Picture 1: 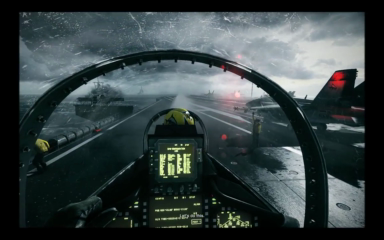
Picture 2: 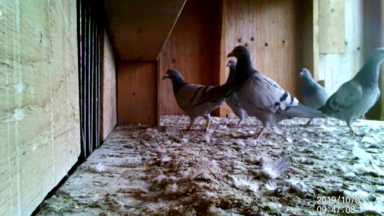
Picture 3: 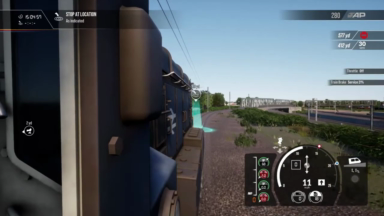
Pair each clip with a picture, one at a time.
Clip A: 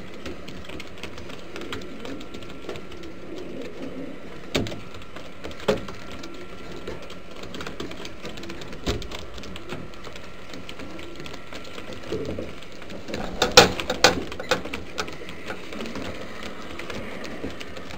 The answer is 2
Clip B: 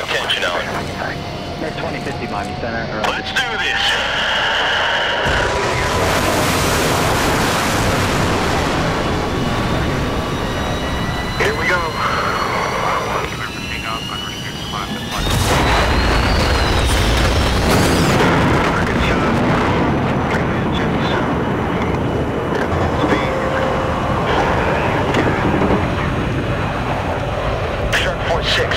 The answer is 1